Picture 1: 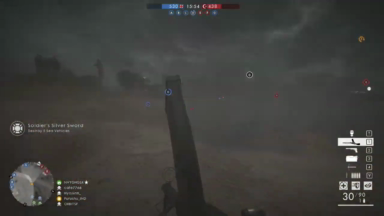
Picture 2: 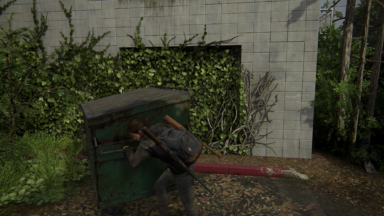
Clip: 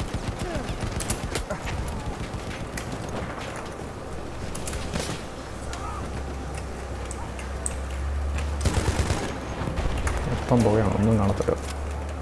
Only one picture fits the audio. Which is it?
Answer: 1